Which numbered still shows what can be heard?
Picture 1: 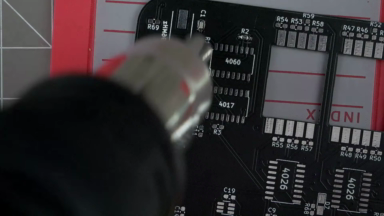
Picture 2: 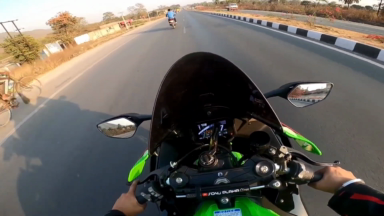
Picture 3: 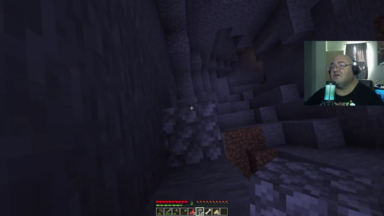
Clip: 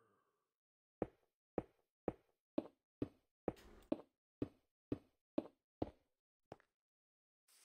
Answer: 3